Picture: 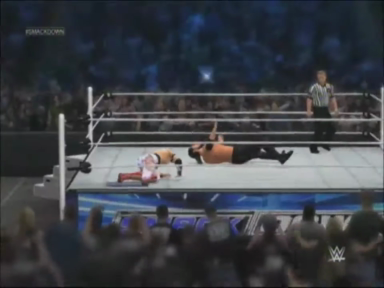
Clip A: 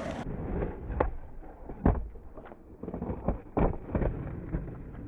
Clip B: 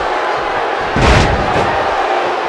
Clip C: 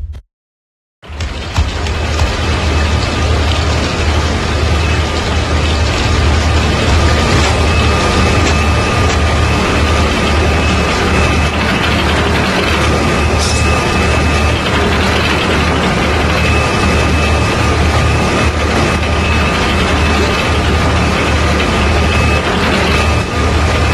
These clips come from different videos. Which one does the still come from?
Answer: B